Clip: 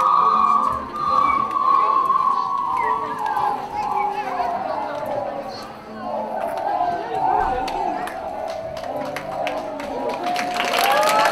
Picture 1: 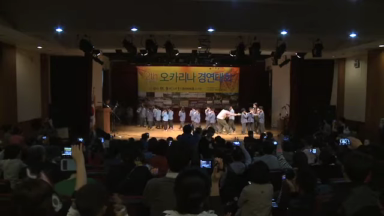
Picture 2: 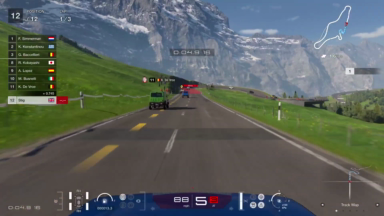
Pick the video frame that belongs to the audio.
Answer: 1